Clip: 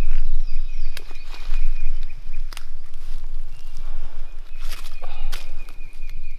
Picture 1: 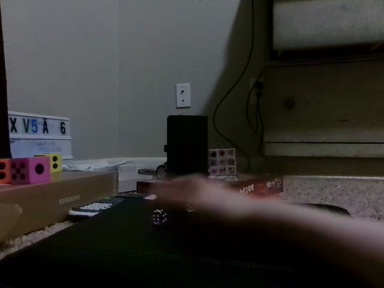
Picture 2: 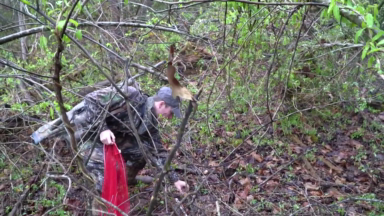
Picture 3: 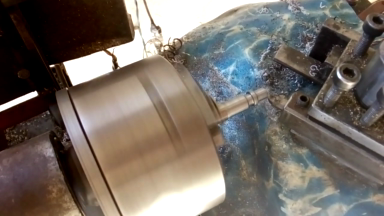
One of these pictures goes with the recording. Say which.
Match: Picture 2